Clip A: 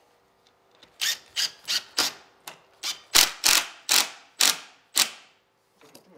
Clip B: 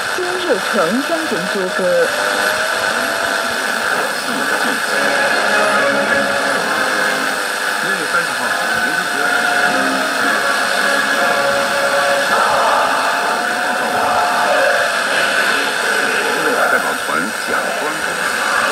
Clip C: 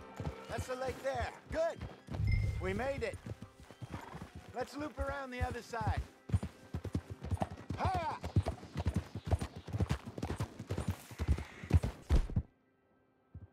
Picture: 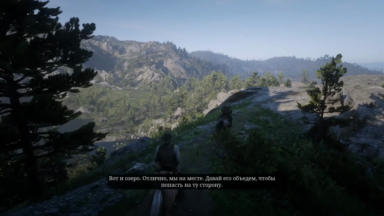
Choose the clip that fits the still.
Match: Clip C